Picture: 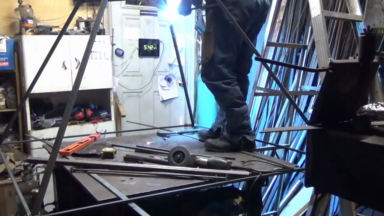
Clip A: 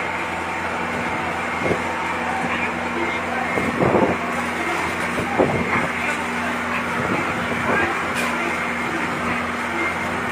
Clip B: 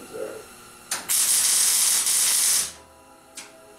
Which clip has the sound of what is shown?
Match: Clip B